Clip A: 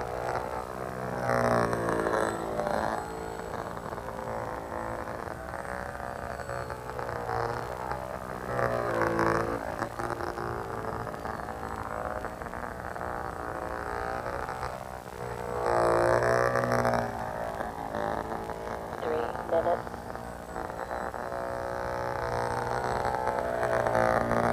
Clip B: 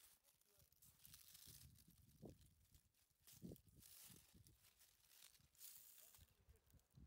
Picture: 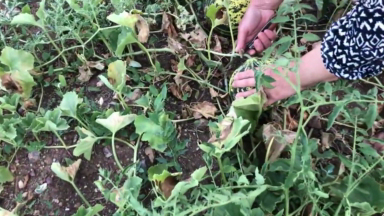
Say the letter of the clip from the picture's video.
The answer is B